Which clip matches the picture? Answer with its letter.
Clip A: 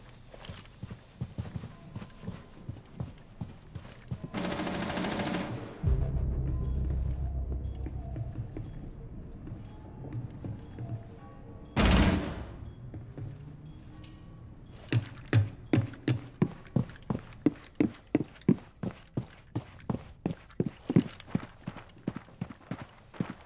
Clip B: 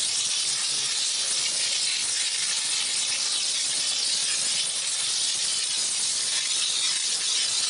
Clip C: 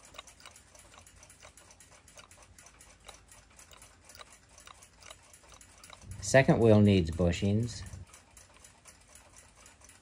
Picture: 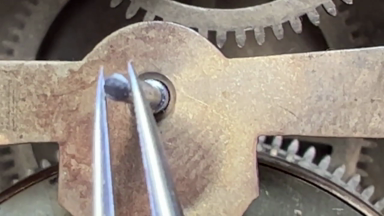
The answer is C